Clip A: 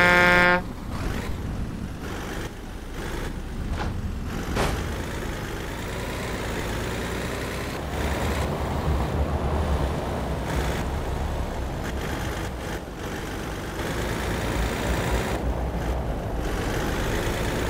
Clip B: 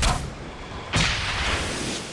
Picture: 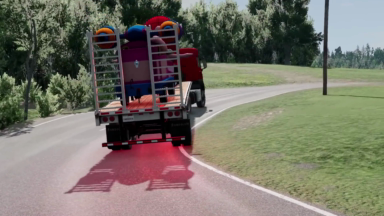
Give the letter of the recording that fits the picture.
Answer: A